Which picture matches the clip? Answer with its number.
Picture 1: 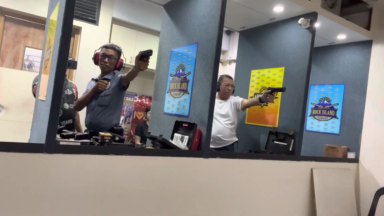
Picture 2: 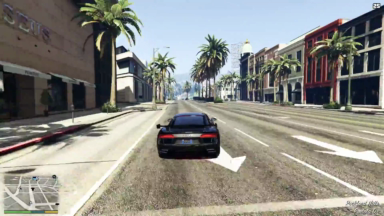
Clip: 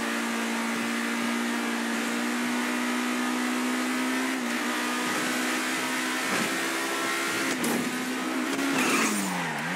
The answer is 2